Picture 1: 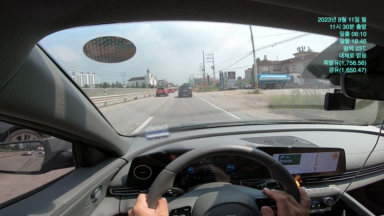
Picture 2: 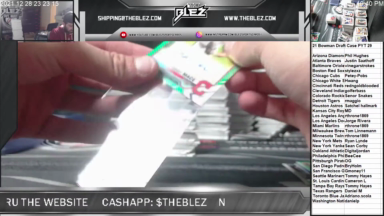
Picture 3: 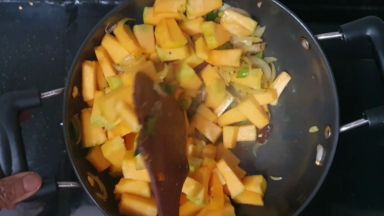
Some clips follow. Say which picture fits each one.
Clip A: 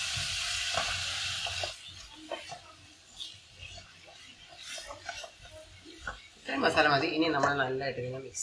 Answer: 3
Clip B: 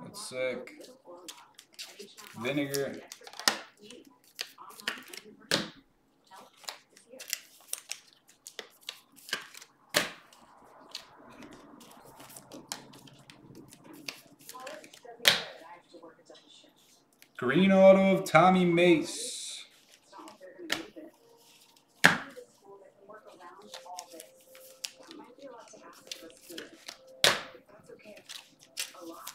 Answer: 2